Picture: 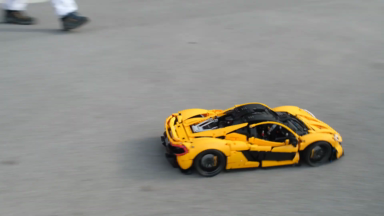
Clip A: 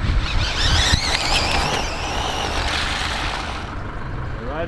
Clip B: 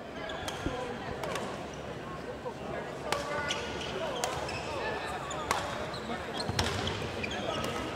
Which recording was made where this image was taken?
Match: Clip A